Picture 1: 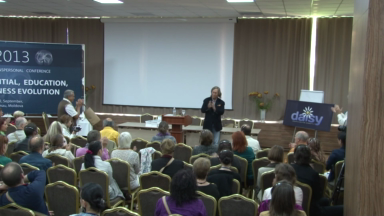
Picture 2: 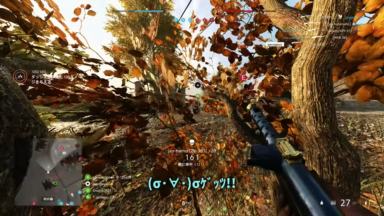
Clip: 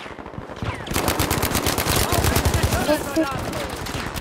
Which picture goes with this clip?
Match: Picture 2